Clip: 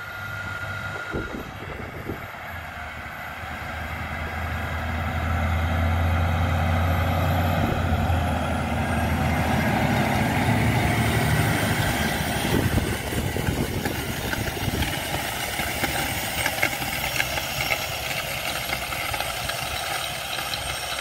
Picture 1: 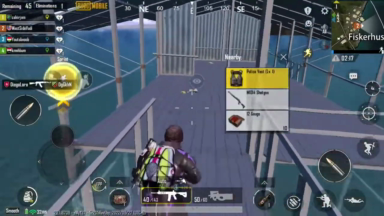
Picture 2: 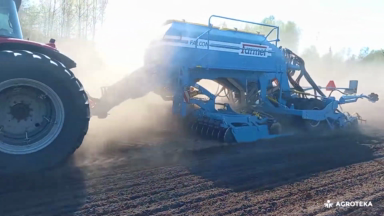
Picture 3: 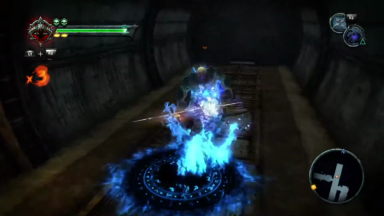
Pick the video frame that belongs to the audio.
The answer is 2